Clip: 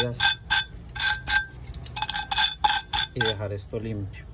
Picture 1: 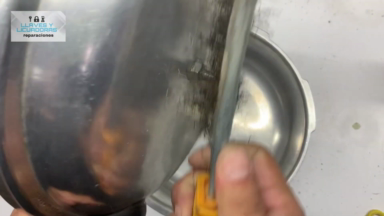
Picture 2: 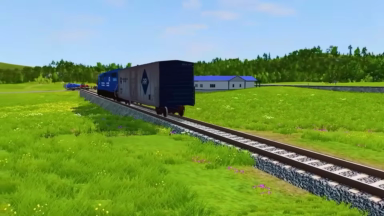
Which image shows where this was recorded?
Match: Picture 1